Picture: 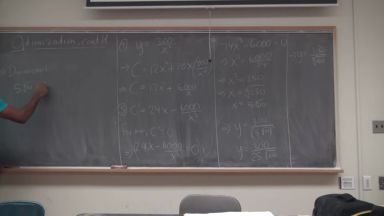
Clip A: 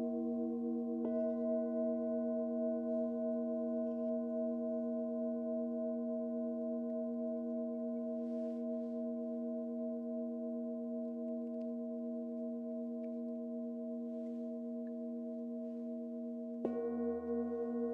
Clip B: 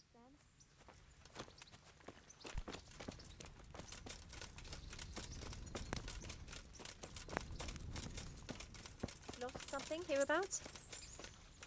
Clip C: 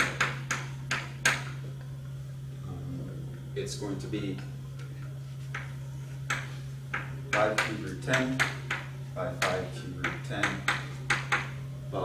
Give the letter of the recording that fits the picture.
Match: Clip C